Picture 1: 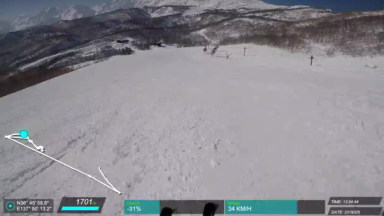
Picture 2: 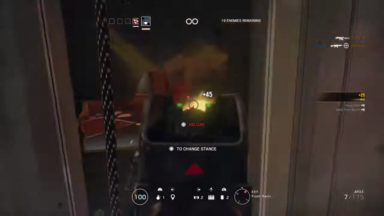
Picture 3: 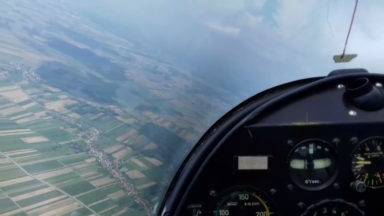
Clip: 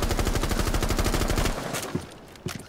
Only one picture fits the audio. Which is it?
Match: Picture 2